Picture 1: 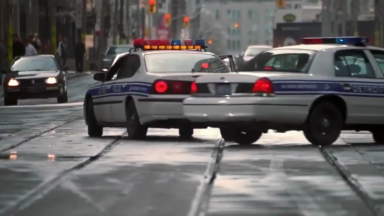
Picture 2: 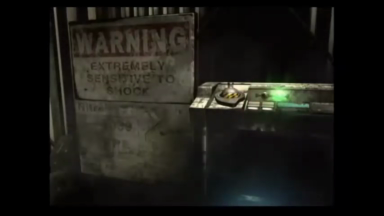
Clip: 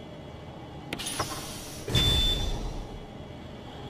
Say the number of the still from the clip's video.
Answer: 2